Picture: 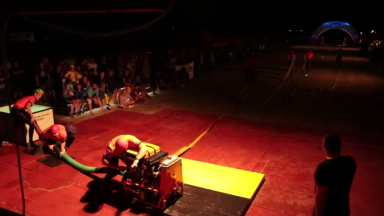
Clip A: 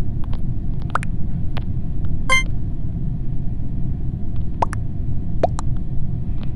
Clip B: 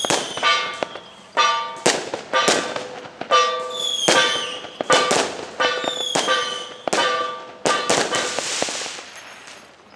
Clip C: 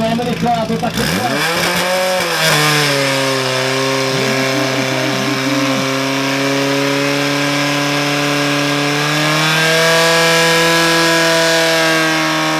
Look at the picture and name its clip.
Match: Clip C